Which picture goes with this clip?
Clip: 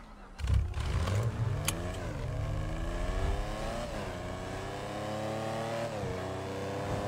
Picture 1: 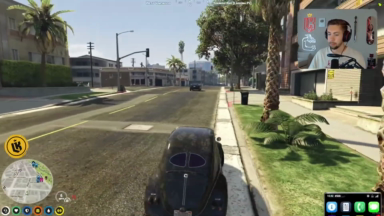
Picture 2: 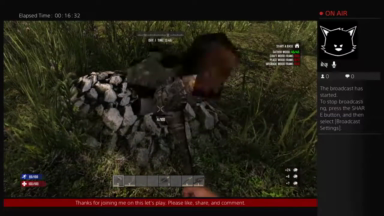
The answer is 1